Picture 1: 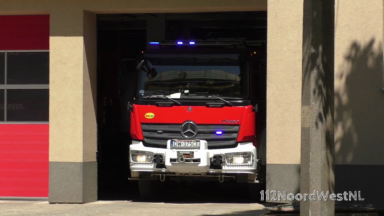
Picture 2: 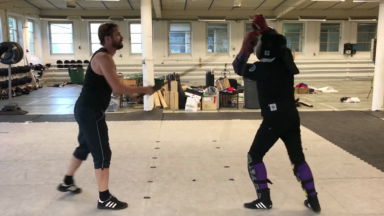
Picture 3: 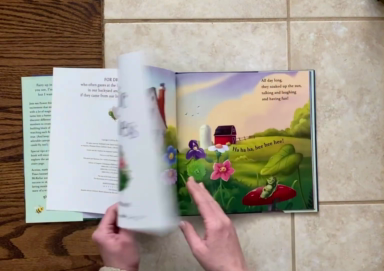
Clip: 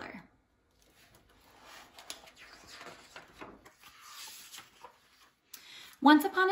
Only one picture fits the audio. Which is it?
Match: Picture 3